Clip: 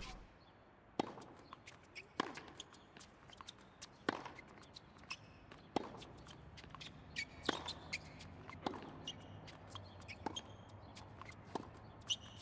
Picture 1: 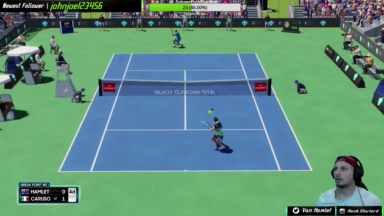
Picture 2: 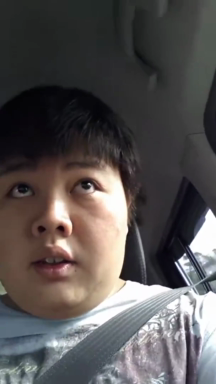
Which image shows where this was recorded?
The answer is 1